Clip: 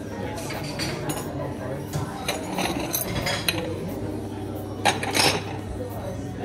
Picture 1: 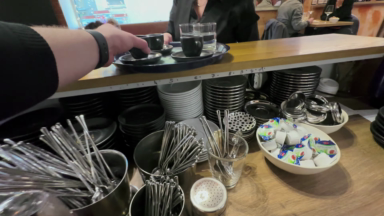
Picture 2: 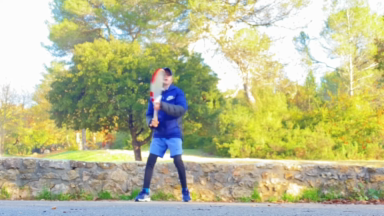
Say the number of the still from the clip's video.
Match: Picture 1